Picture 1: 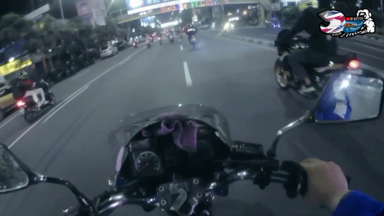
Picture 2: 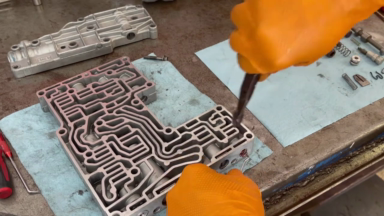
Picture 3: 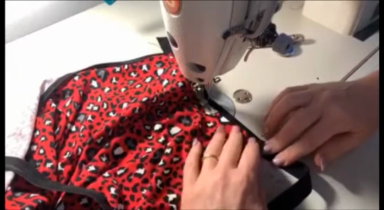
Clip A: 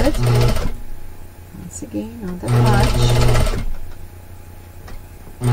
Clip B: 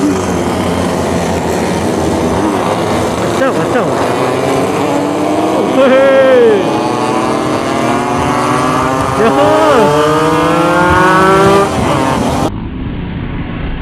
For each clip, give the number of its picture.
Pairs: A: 3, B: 1